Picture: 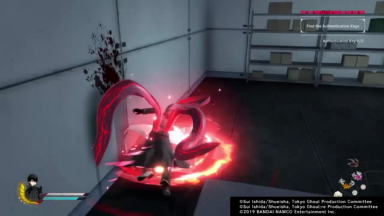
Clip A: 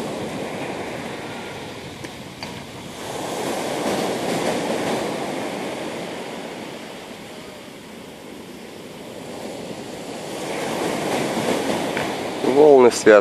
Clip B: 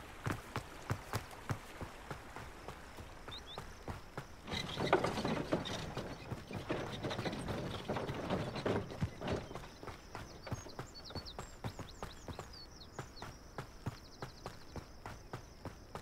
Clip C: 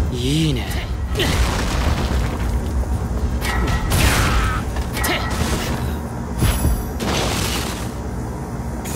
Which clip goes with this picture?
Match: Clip C